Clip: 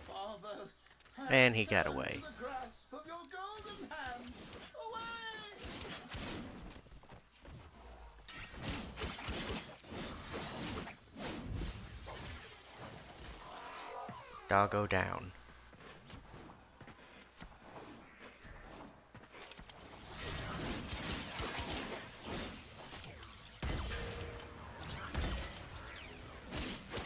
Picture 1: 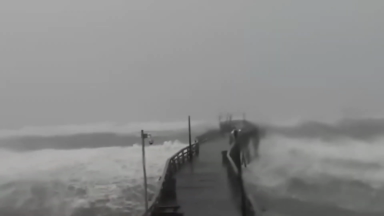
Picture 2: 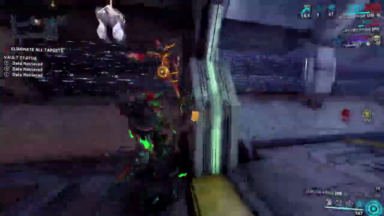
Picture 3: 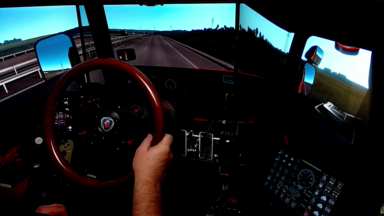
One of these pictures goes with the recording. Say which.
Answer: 2